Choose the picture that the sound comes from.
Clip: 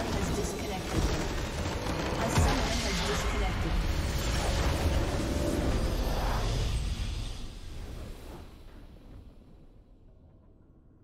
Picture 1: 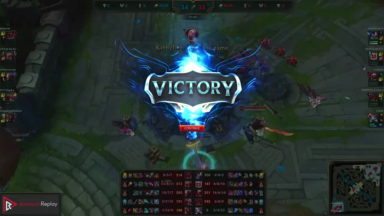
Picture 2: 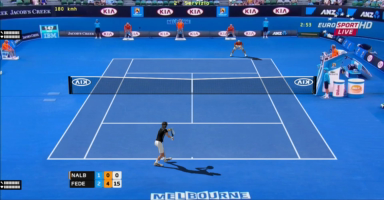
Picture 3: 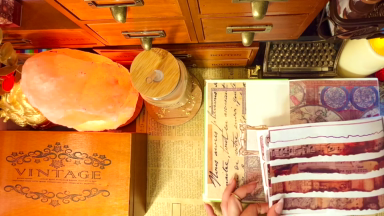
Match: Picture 1